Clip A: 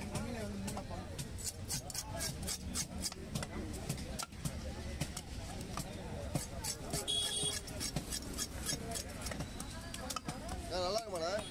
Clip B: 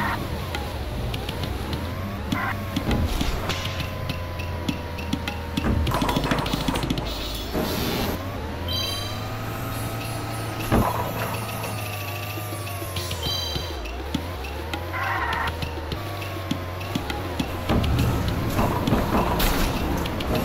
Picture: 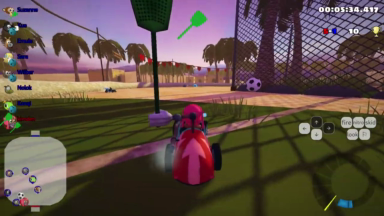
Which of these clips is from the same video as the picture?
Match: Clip B